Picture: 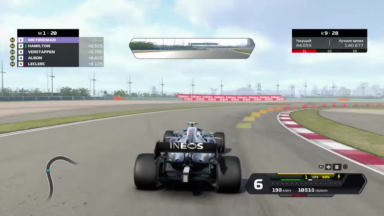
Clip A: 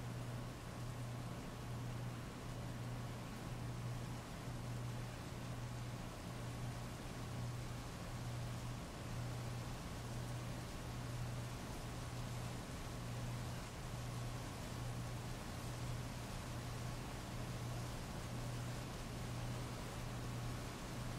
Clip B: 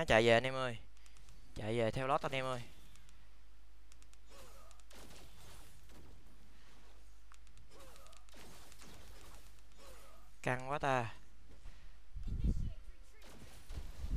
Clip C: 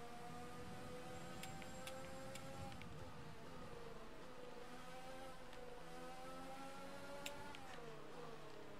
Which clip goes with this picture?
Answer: C